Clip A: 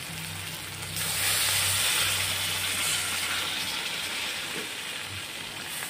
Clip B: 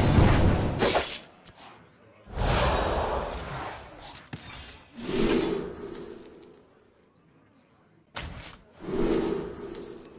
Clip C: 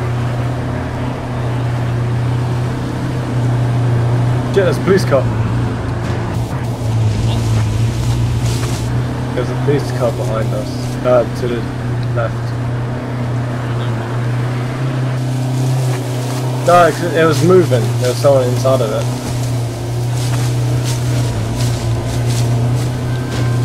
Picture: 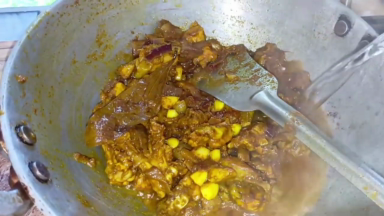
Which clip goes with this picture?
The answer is A